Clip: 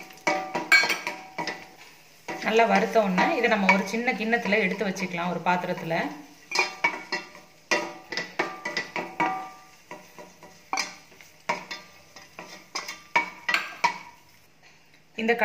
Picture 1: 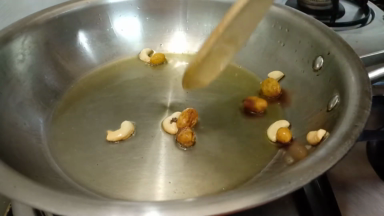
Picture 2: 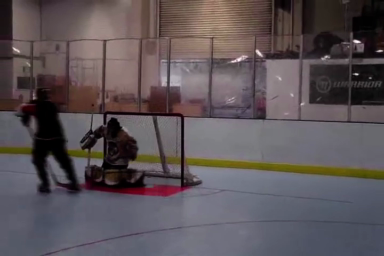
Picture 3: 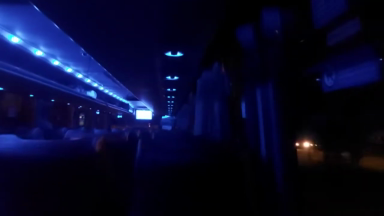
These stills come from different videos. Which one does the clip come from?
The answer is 1